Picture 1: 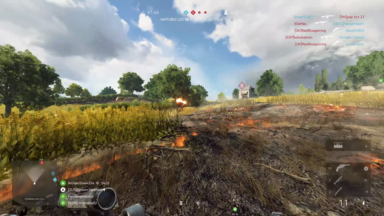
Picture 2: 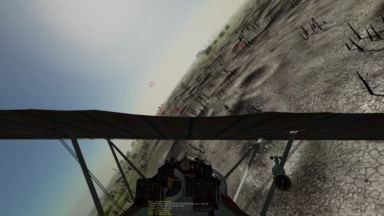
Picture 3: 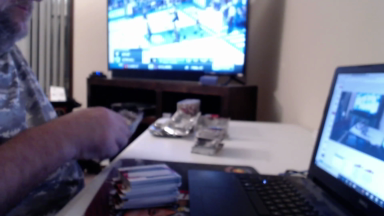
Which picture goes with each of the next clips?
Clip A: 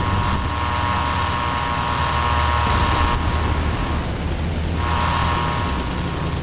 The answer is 2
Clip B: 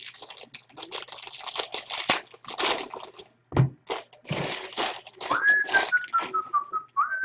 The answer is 3